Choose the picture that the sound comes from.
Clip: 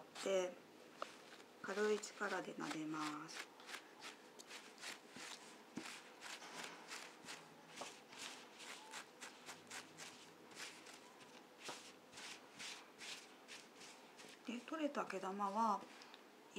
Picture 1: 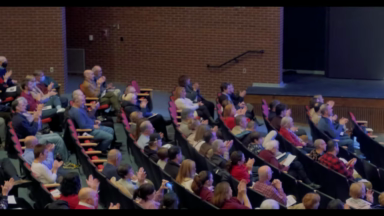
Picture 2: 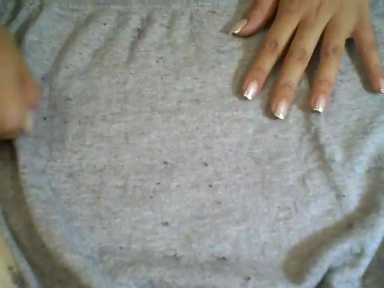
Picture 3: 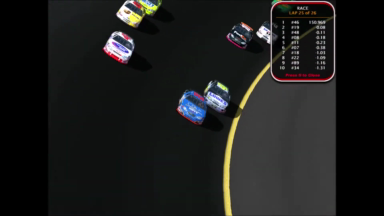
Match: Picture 2